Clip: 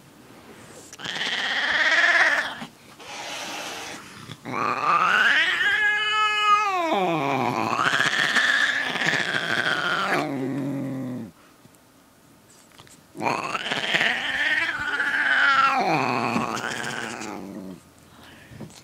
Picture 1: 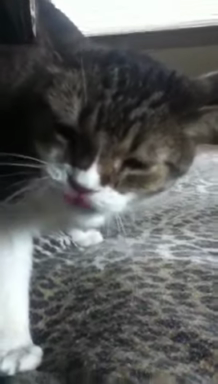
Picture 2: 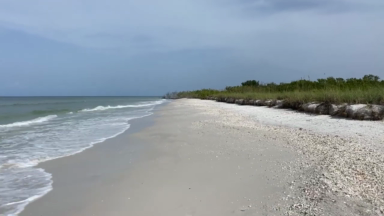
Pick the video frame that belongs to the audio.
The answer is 1